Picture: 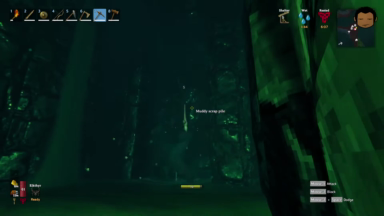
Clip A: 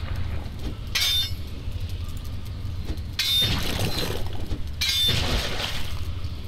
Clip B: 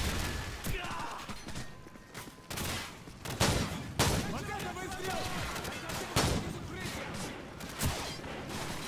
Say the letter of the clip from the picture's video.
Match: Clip A